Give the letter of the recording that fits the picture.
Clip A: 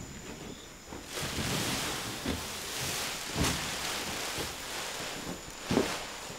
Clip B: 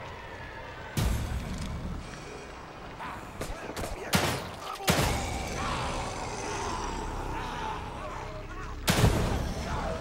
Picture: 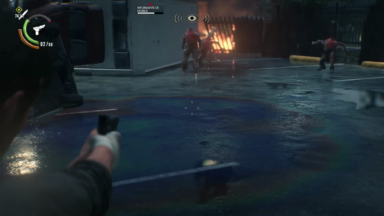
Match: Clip B